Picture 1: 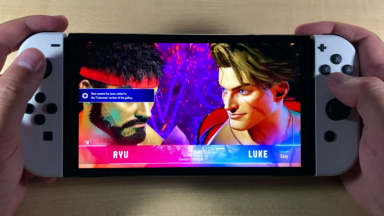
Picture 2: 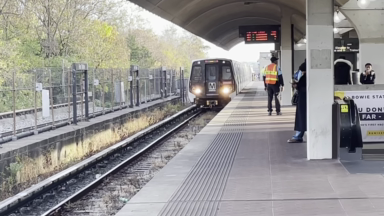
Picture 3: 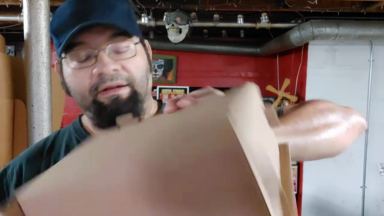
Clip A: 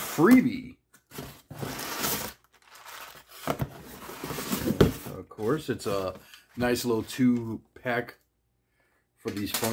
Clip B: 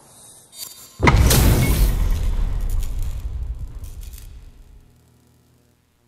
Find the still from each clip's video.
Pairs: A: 3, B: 1